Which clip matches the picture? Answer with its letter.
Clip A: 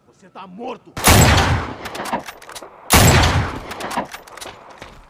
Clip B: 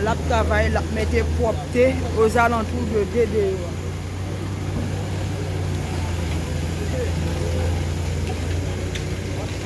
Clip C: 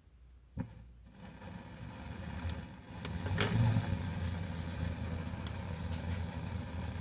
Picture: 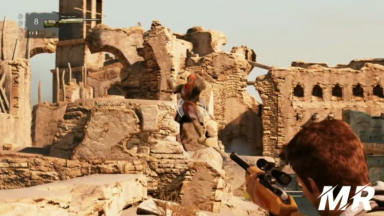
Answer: A